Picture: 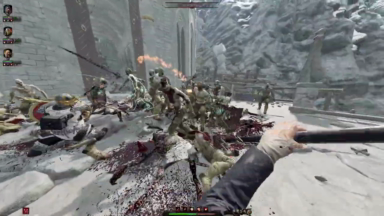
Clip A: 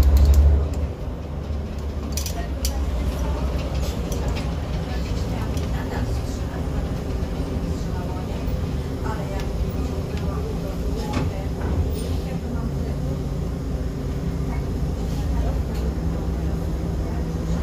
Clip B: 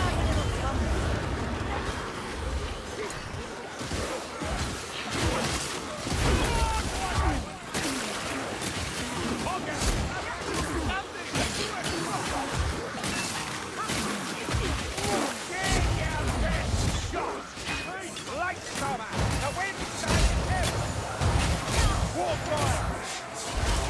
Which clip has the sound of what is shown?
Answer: B